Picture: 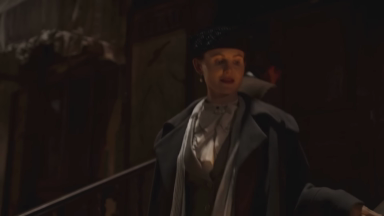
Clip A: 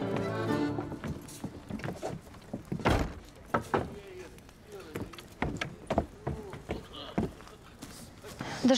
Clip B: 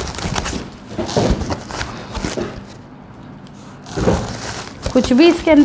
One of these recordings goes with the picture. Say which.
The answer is A